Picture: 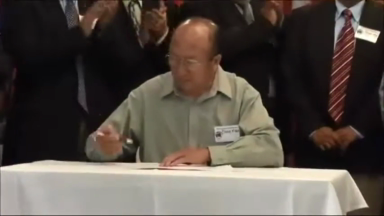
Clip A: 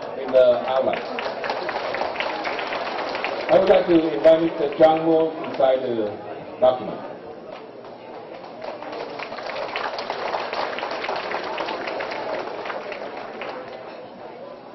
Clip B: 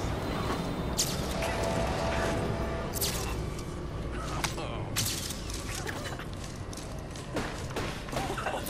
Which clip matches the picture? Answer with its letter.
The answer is A